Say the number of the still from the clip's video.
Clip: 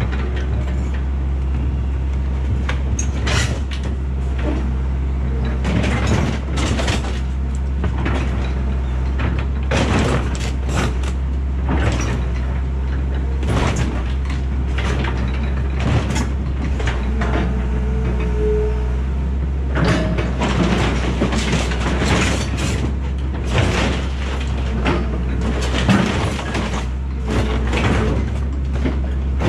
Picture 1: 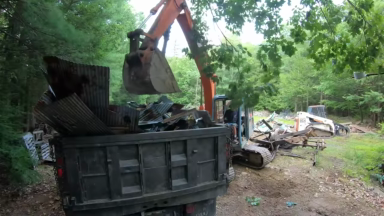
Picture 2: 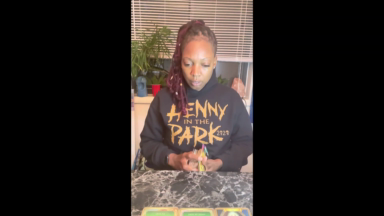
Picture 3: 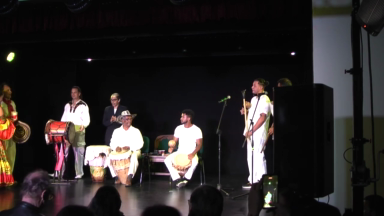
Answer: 1